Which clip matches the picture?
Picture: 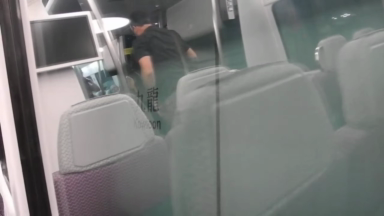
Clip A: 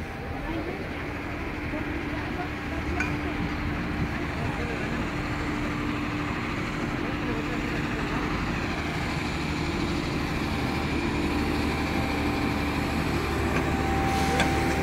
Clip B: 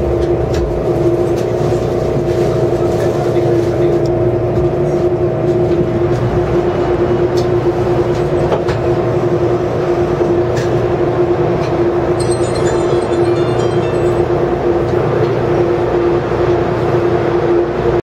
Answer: B